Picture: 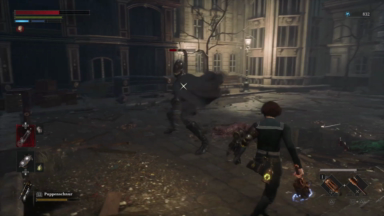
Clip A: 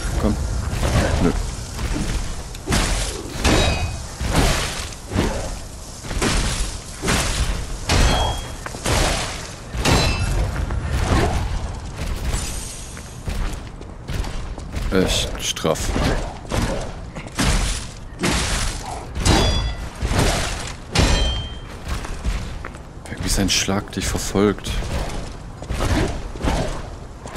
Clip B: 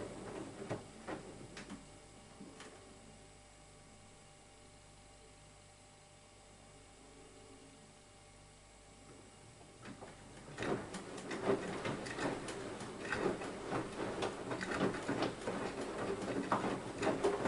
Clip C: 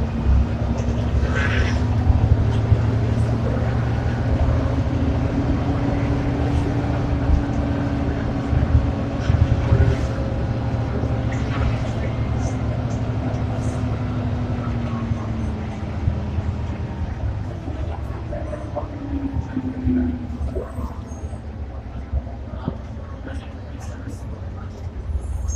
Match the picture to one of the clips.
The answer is A